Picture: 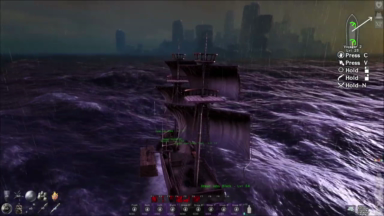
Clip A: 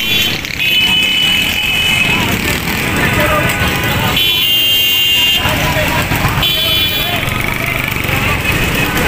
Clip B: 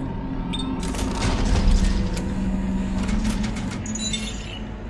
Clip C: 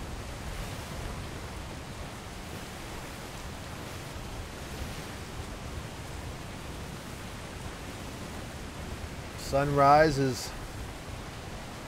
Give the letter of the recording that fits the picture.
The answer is C